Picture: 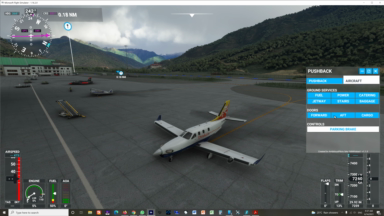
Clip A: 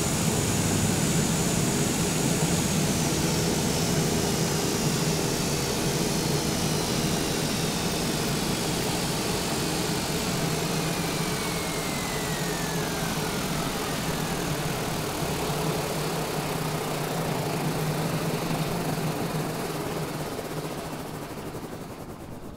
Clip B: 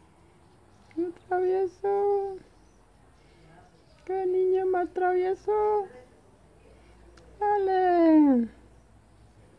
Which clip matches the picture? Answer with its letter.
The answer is A